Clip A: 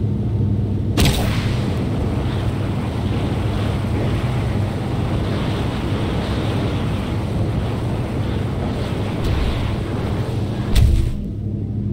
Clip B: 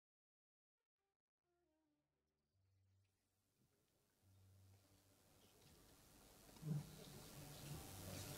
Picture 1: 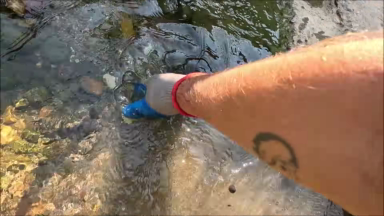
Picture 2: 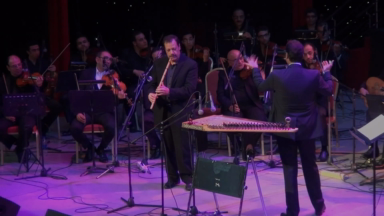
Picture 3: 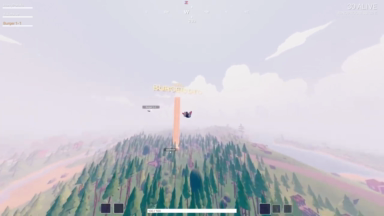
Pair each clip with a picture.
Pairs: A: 3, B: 2